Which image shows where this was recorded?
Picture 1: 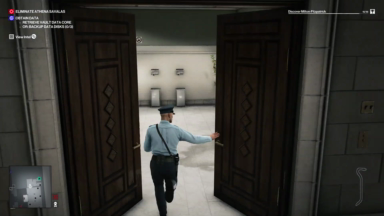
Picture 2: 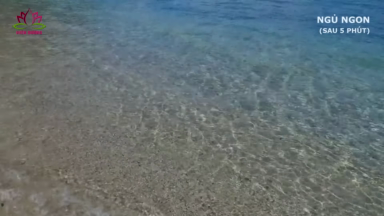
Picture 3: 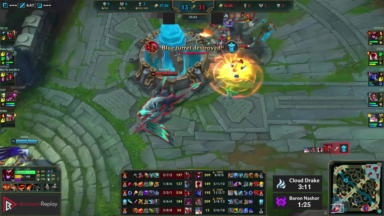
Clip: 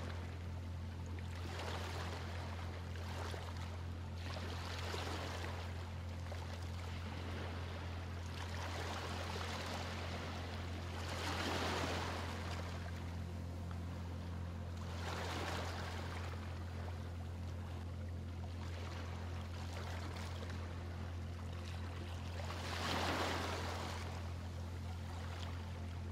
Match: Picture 2